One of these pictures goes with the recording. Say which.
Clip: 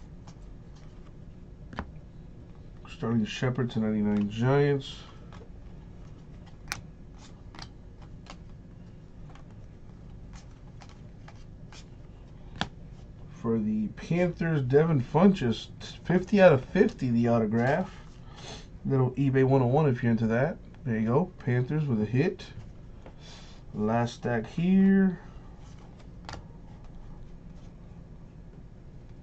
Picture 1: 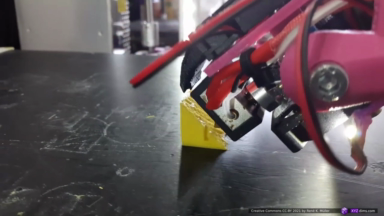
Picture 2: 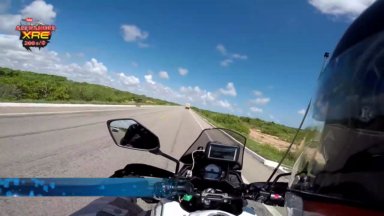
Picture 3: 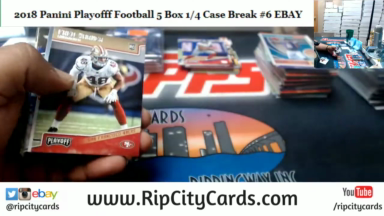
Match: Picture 3